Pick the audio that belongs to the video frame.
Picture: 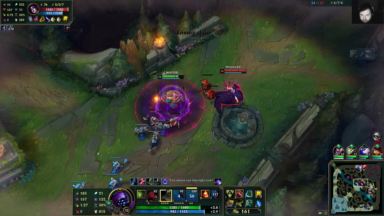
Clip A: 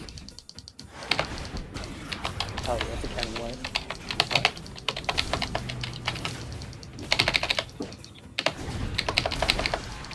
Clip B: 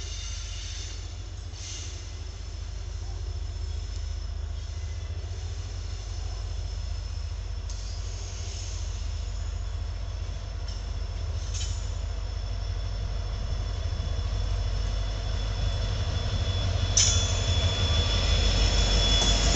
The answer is A